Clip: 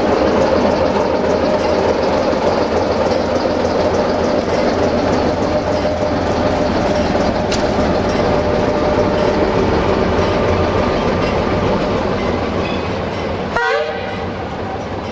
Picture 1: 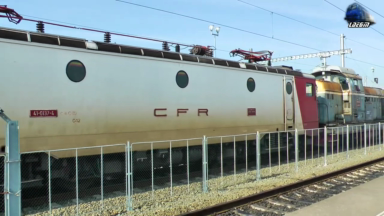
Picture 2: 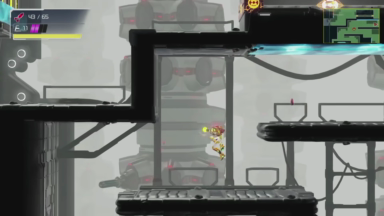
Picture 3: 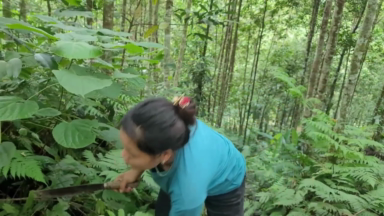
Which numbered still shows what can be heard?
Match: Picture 1